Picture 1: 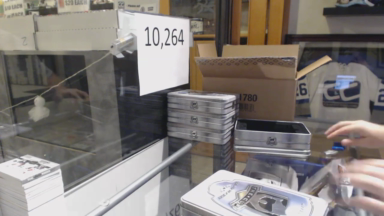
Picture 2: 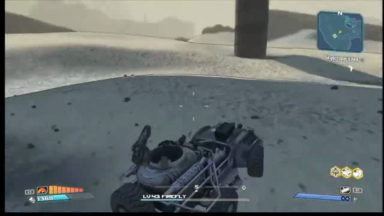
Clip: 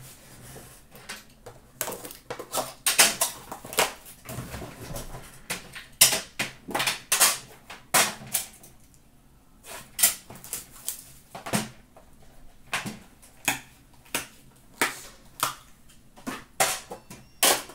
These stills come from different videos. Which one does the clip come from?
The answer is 1